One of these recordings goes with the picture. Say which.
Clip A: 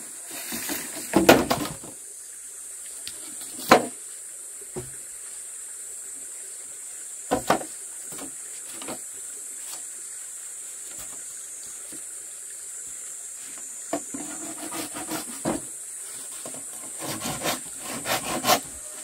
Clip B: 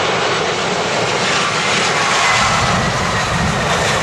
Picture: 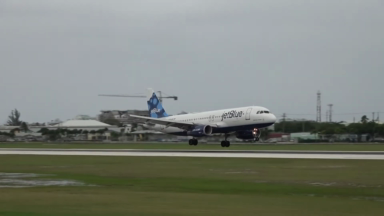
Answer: B